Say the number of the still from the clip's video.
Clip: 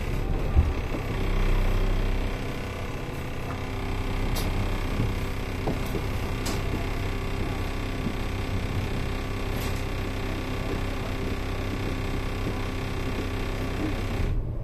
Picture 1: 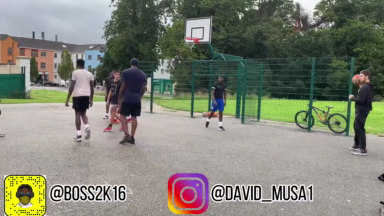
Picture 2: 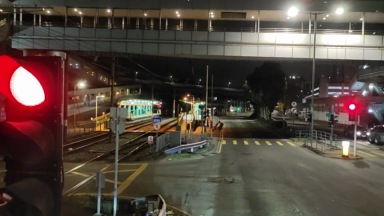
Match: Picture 2